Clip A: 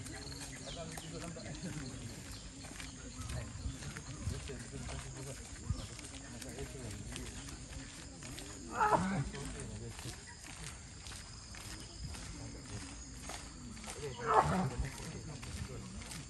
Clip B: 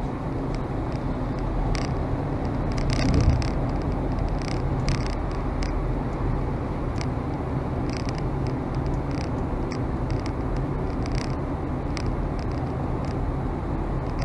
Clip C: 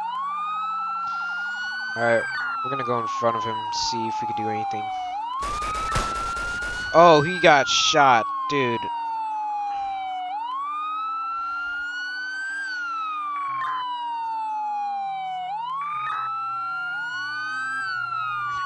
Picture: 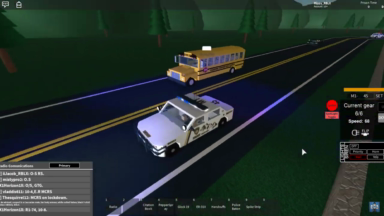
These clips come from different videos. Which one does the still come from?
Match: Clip C